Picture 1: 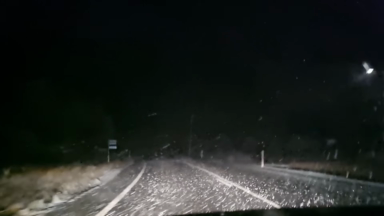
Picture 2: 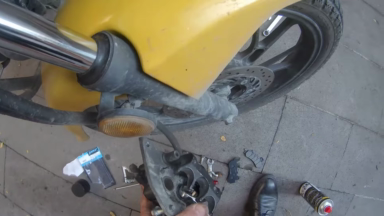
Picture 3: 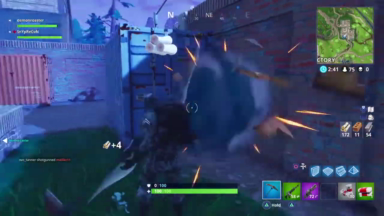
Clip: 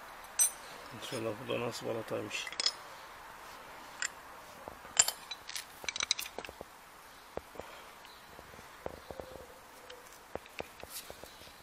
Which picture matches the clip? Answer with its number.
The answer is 2